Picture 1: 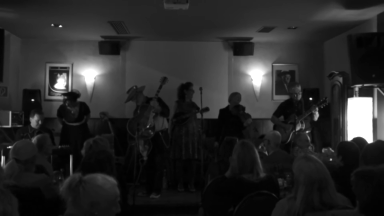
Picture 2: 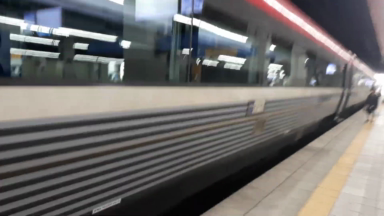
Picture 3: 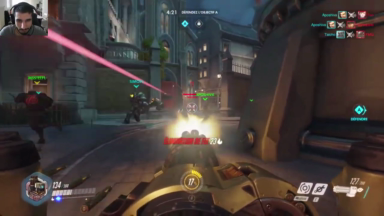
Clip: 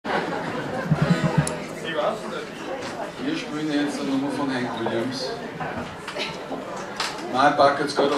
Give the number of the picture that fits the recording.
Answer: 1